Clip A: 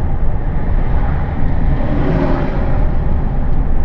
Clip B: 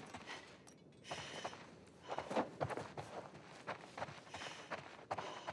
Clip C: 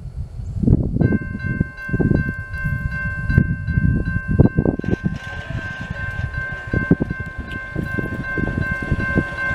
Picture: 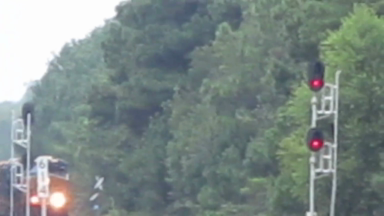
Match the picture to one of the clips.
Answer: C